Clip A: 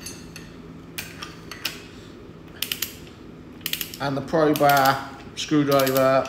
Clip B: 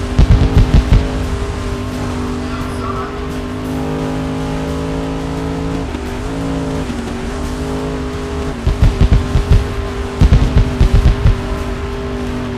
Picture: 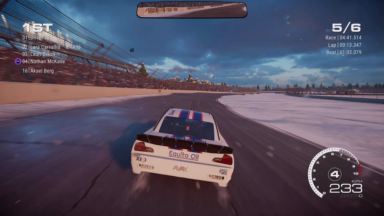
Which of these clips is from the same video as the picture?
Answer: B